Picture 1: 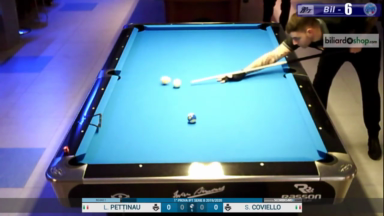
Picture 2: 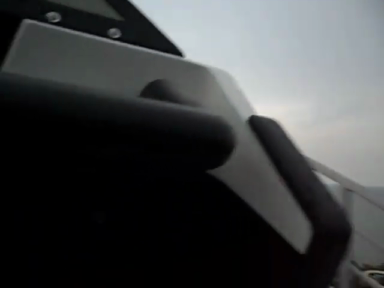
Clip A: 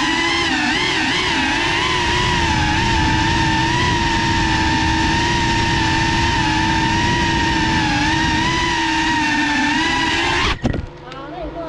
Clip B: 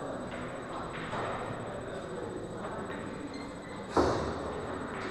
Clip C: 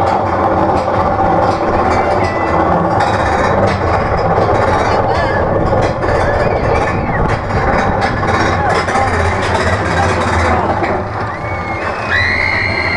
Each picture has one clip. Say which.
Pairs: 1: B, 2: C